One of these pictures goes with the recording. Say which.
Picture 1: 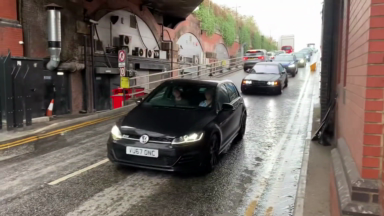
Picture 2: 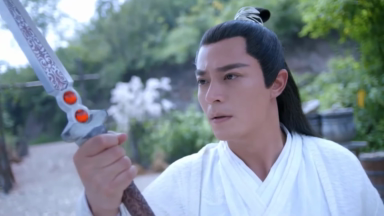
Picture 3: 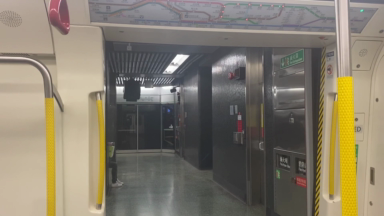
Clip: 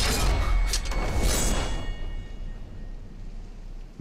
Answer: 2